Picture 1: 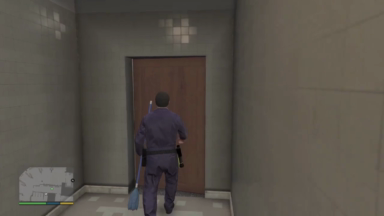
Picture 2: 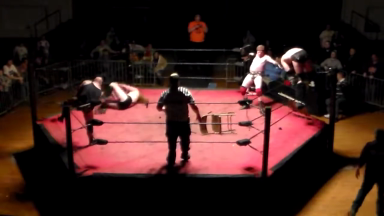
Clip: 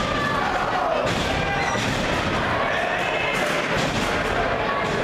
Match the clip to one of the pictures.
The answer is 2